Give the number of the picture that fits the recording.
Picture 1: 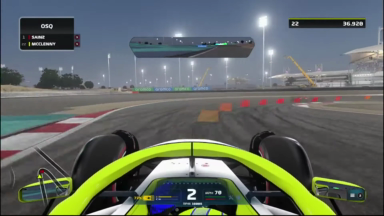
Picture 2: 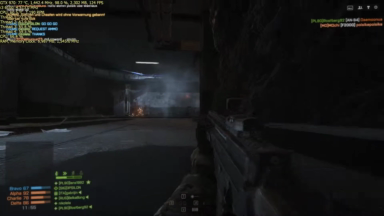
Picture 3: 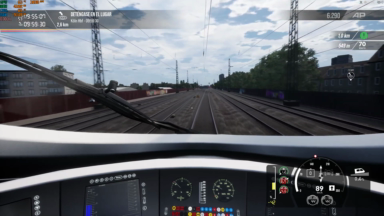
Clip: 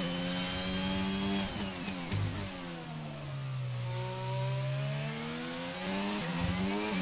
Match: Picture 1